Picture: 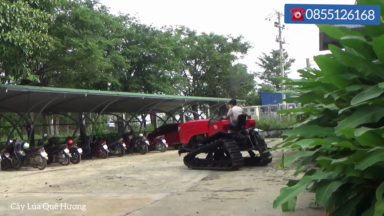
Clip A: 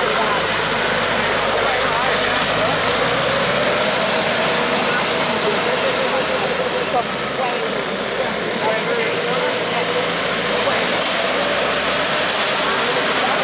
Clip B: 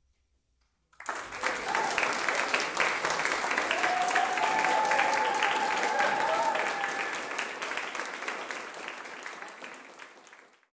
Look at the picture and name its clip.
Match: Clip A